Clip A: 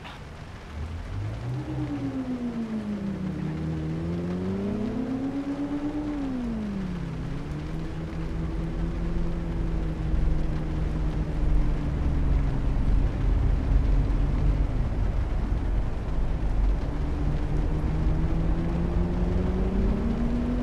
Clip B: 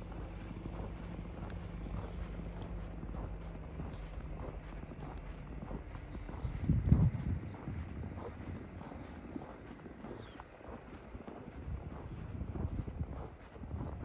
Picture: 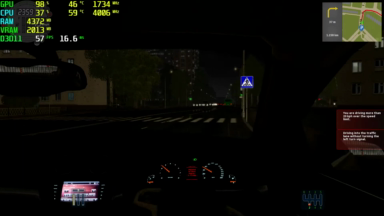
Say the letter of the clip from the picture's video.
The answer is A